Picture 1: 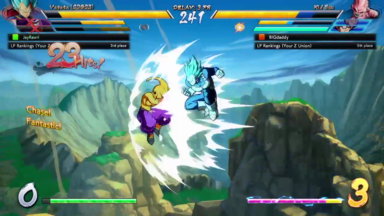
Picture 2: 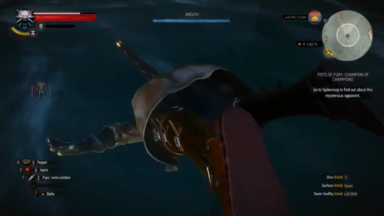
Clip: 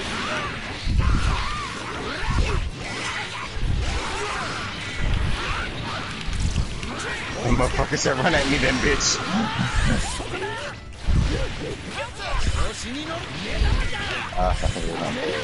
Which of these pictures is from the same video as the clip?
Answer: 1